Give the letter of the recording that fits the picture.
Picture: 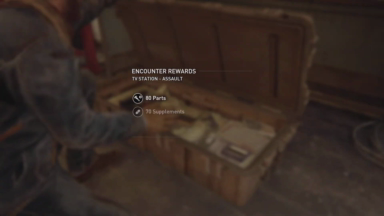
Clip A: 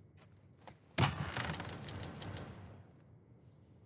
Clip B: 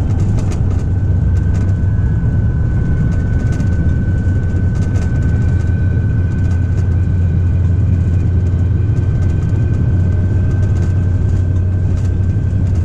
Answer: A